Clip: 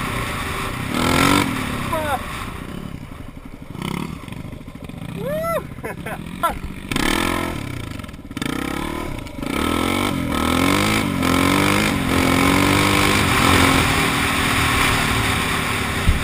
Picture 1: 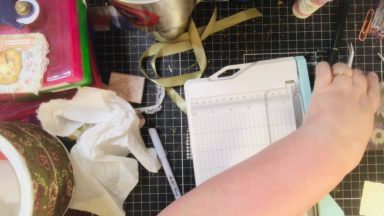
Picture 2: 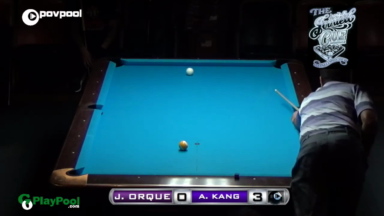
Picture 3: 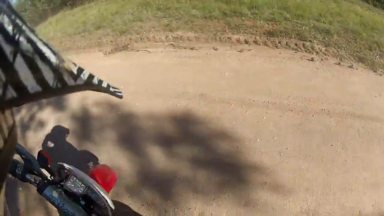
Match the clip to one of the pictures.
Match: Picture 3